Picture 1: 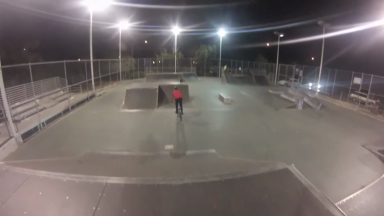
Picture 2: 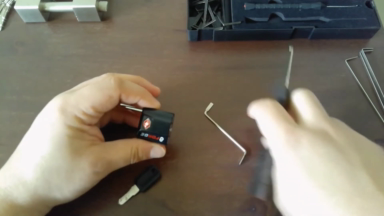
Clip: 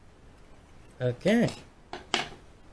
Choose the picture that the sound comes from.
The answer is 2